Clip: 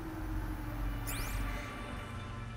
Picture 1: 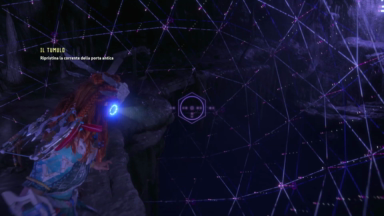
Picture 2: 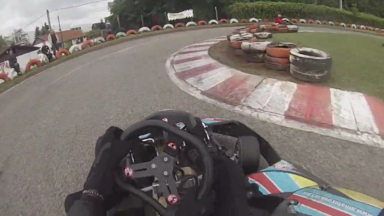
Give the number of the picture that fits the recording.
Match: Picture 1